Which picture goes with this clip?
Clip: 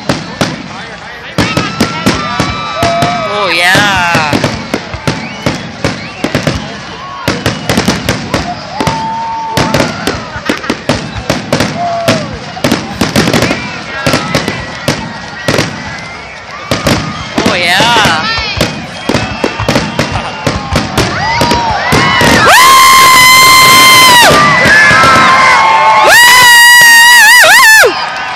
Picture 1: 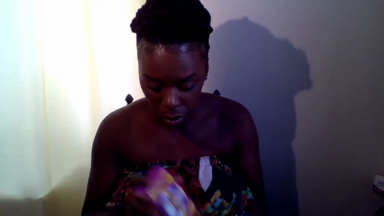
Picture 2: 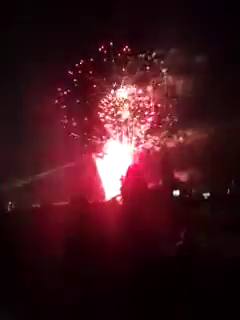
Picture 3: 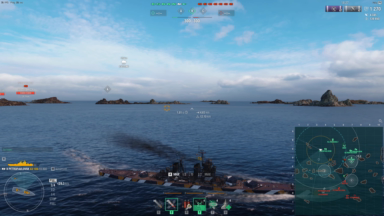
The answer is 2